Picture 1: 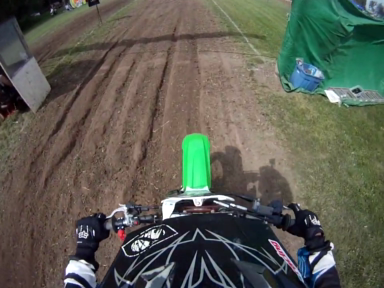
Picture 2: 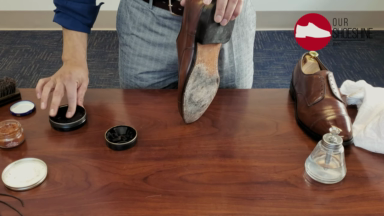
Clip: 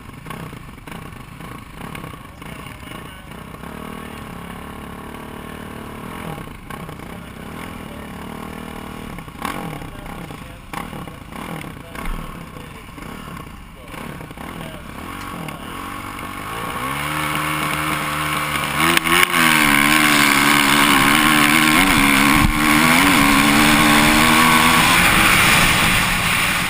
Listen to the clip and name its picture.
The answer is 1